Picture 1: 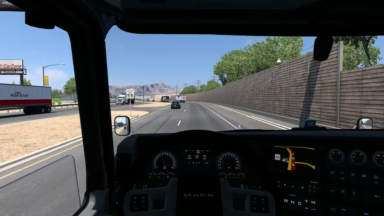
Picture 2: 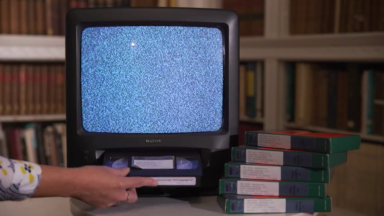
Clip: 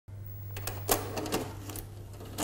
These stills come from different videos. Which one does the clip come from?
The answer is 2